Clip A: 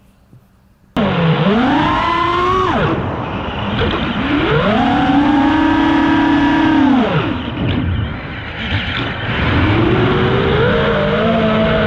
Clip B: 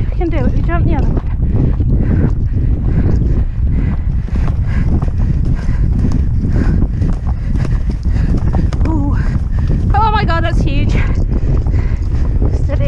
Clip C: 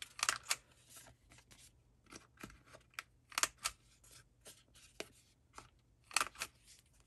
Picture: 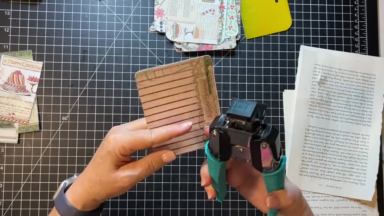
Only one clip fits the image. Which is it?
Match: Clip C